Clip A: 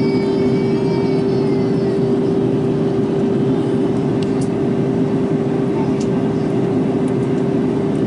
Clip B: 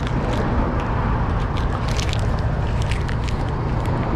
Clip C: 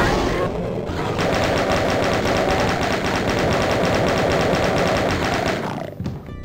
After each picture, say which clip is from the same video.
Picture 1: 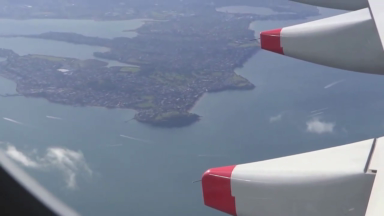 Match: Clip A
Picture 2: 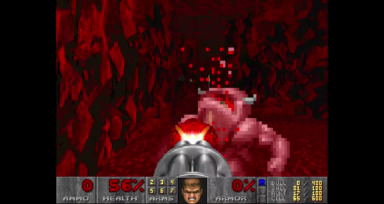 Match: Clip C